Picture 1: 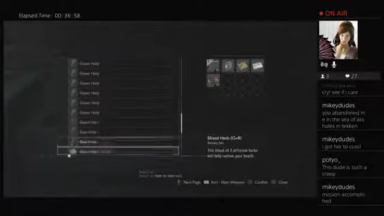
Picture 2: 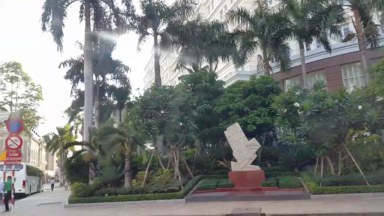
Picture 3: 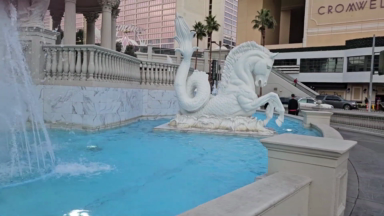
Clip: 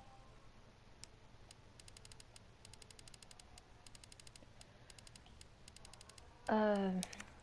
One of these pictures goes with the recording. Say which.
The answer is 1